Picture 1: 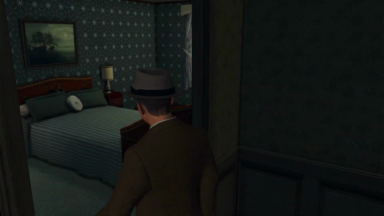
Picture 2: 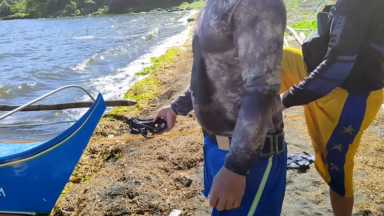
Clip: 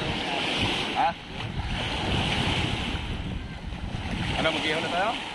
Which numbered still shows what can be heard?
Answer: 2